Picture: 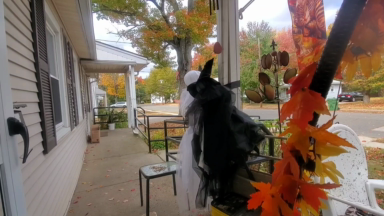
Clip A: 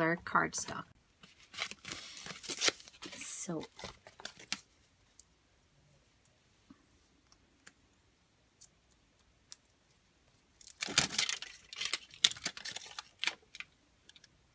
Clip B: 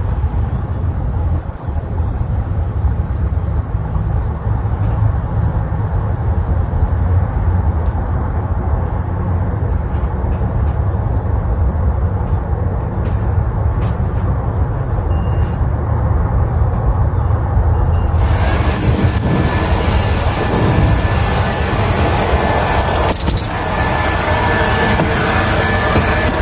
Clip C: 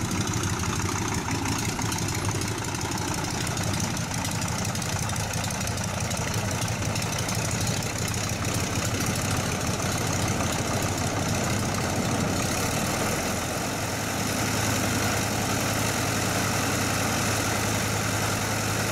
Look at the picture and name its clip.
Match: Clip B